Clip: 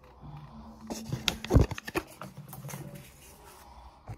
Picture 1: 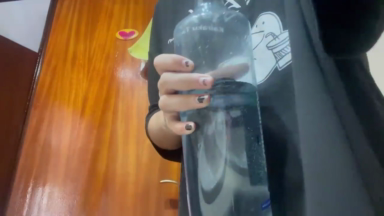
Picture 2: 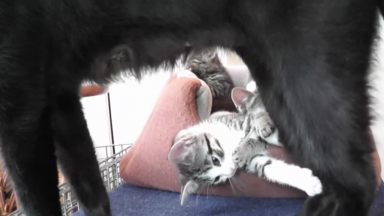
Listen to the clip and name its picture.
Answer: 1